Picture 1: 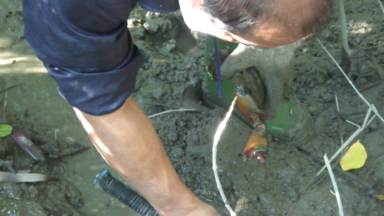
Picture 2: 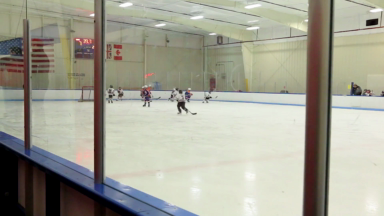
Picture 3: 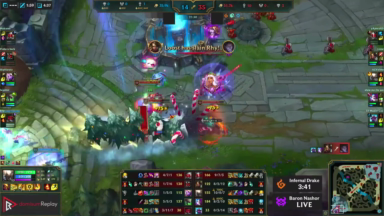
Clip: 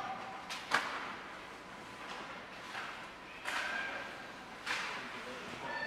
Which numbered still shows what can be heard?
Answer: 2